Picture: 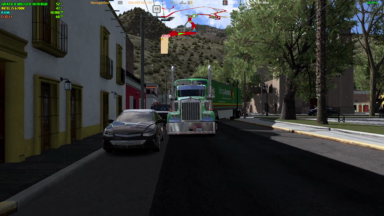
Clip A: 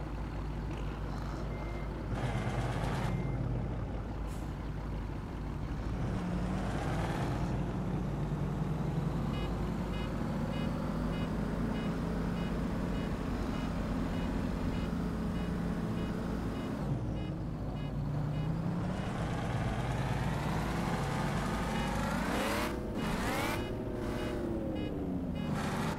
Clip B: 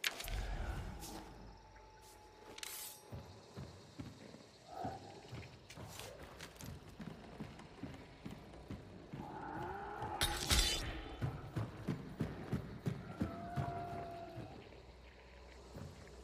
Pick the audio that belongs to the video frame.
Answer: A